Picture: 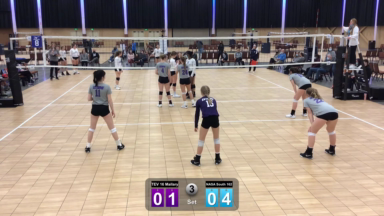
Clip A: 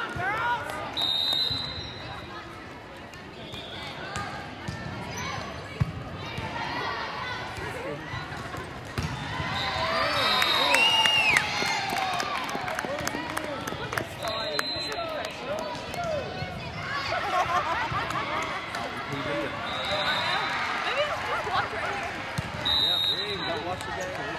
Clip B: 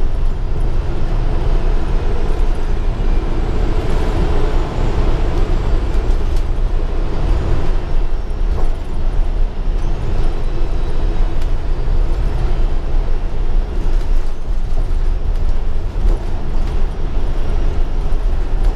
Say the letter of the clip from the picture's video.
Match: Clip A